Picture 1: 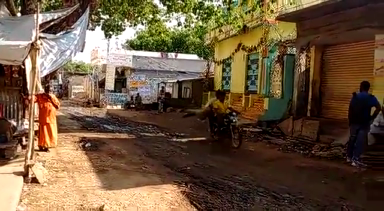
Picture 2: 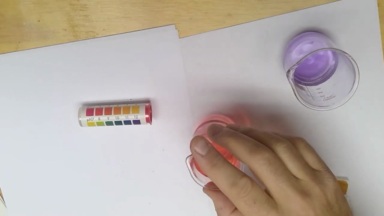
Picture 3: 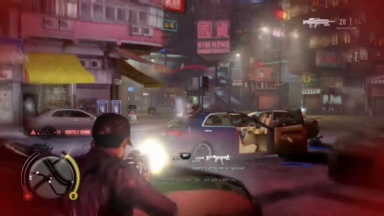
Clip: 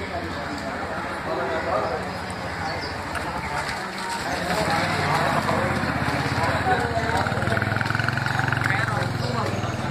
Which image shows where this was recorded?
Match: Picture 1